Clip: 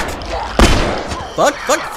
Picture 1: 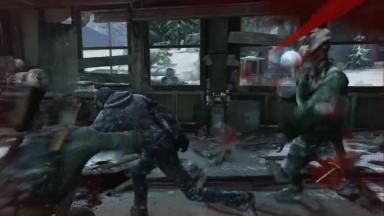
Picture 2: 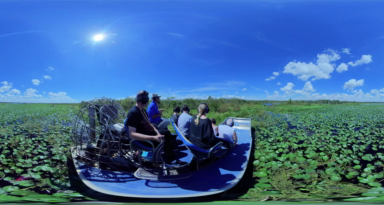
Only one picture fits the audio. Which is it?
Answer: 1